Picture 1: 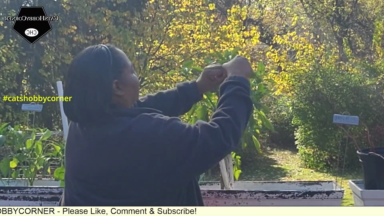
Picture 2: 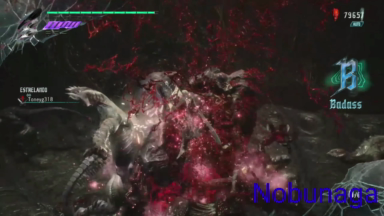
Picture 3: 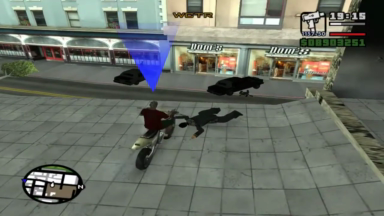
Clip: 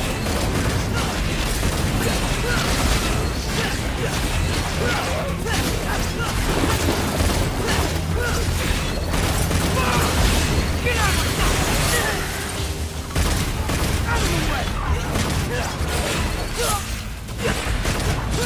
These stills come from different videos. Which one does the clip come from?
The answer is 2